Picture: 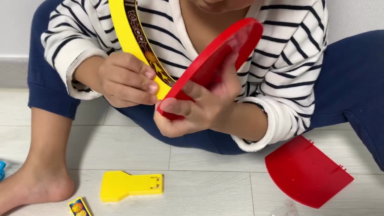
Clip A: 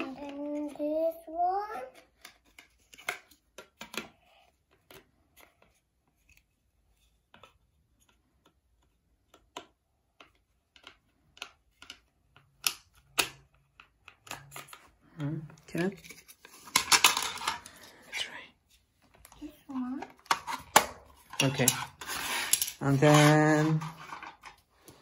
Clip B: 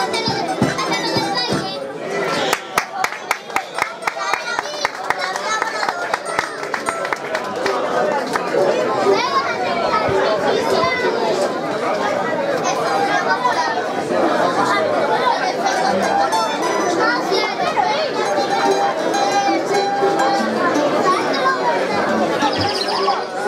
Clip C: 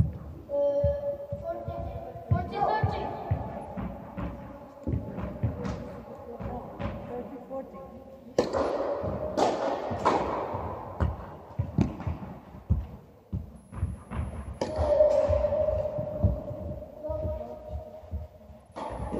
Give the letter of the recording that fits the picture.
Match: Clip A